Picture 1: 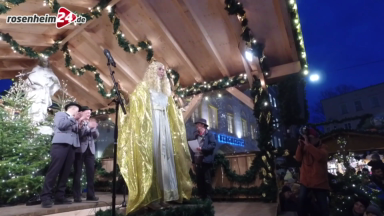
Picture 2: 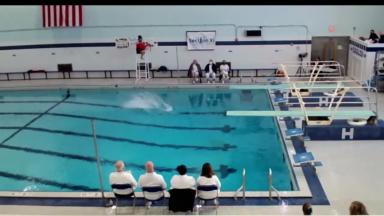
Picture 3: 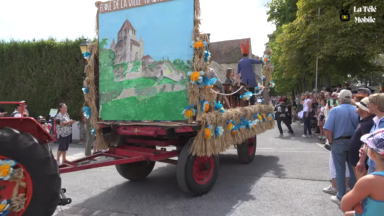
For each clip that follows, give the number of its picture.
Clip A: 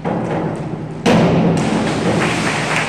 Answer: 2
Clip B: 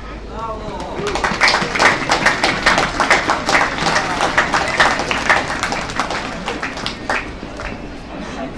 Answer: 1